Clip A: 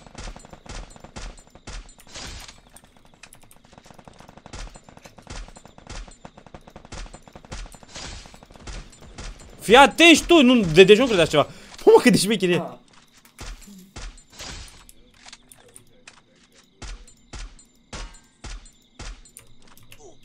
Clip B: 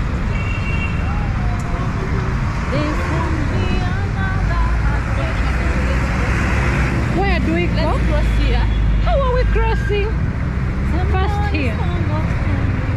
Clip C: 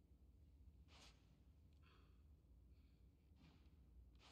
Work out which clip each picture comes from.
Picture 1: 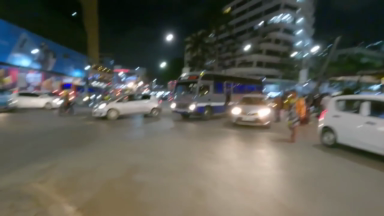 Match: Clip B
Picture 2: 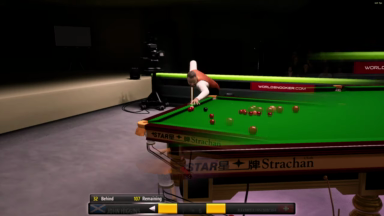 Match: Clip C